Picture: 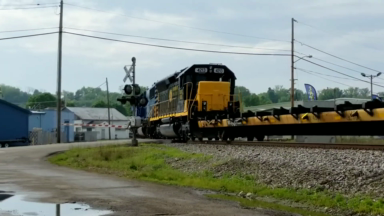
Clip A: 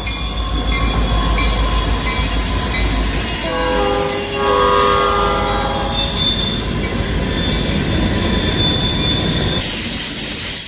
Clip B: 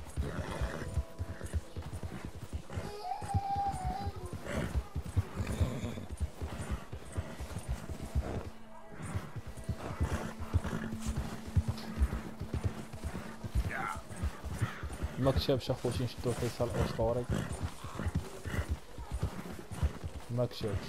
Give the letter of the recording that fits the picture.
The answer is A